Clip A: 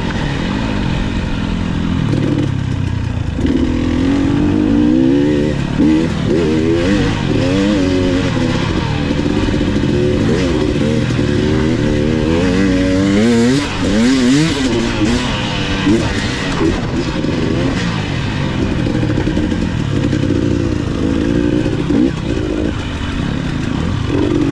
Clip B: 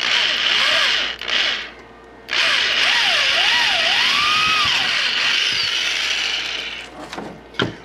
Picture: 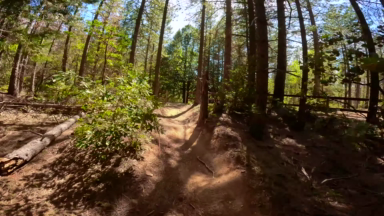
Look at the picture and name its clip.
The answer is A